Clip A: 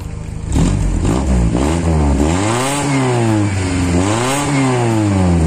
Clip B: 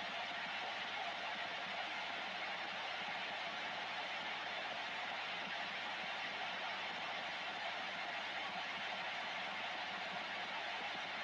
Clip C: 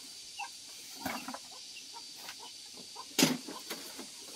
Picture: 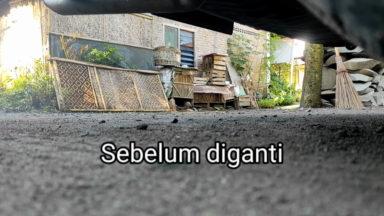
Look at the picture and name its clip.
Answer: A